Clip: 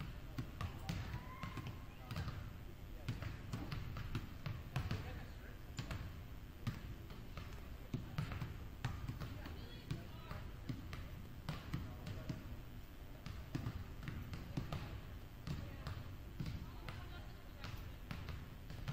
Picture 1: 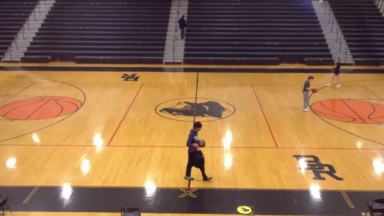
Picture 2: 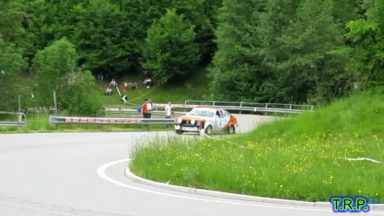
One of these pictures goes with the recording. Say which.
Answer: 1